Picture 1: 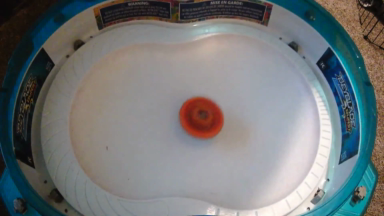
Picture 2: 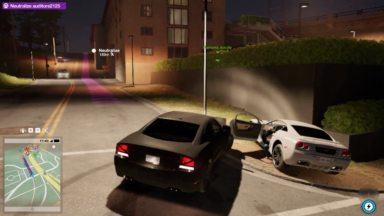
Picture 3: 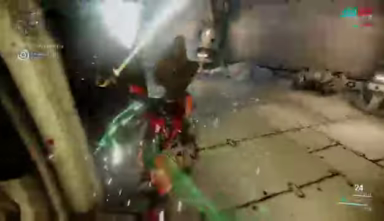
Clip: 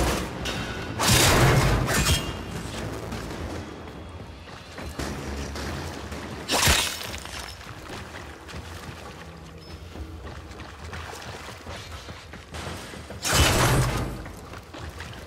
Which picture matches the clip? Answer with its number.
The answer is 3